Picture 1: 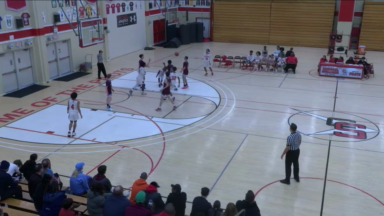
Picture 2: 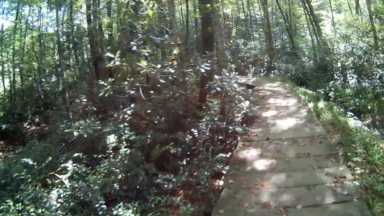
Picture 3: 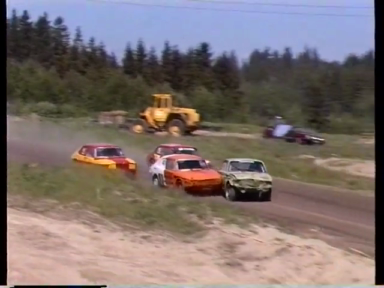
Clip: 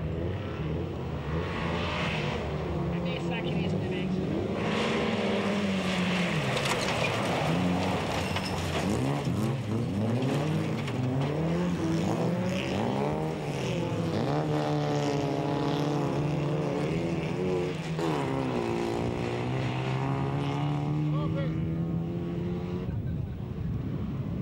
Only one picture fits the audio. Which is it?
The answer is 3